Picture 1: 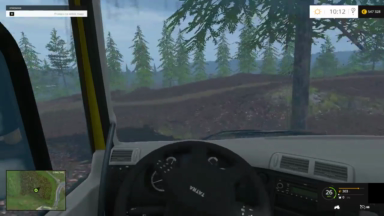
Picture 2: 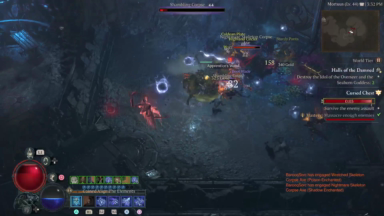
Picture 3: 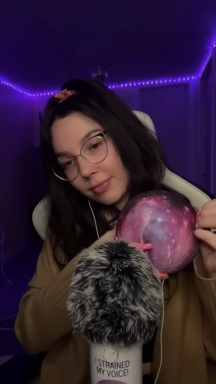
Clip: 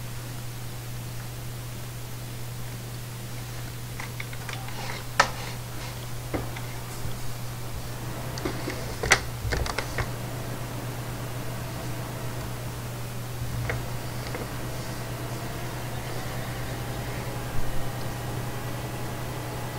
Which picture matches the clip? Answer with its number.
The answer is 1